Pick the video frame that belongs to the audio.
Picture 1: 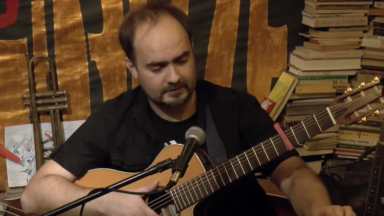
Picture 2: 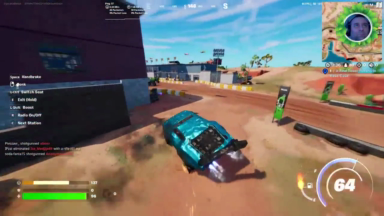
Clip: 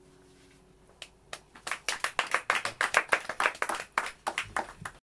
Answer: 1